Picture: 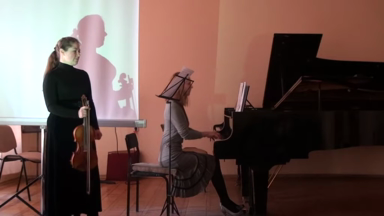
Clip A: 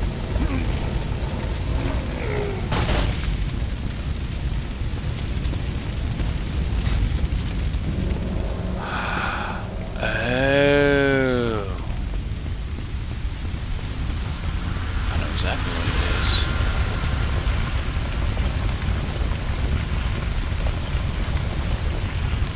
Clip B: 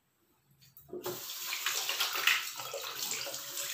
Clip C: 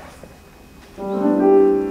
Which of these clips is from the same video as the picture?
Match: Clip C